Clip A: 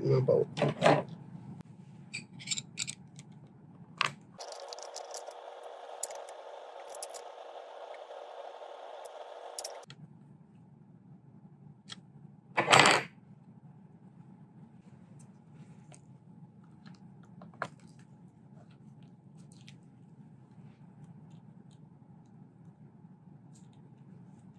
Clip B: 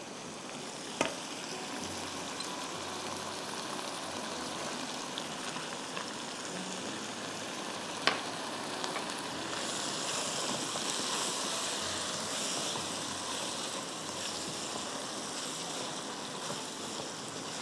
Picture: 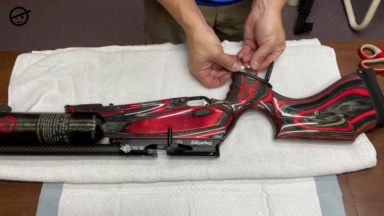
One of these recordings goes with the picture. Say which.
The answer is A